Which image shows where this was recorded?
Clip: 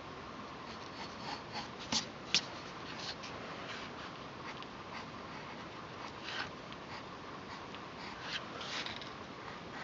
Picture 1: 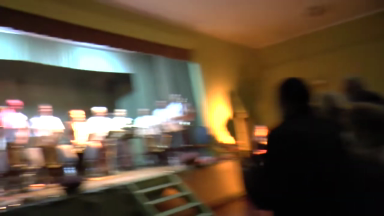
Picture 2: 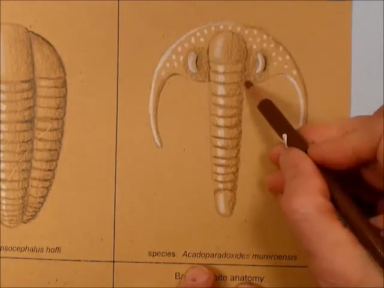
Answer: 2